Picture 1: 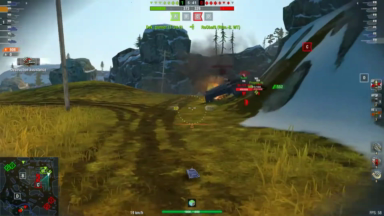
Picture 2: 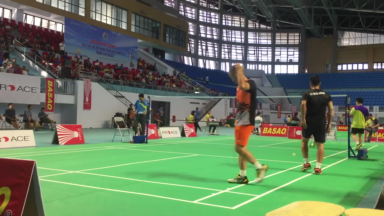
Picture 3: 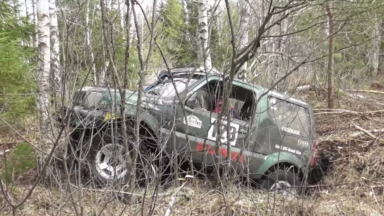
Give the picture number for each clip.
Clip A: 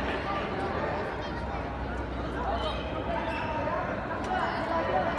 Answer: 2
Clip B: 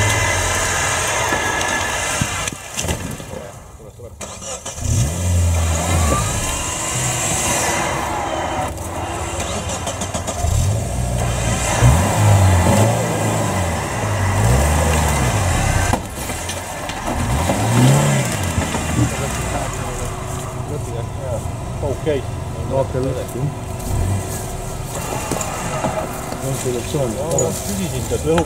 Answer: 3